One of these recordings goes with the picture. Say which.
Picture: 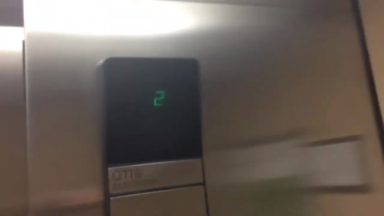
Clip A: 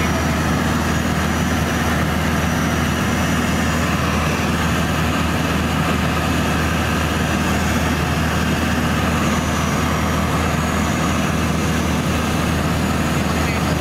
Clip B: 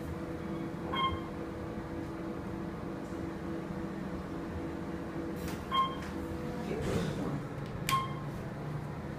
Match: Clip B